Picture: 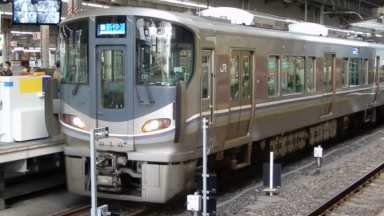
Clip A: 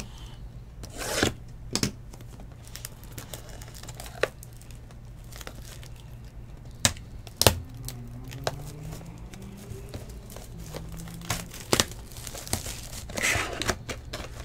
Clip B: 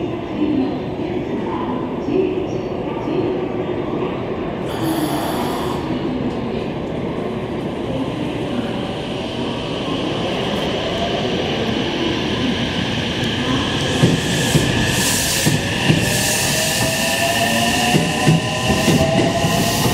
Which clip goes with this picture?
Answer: B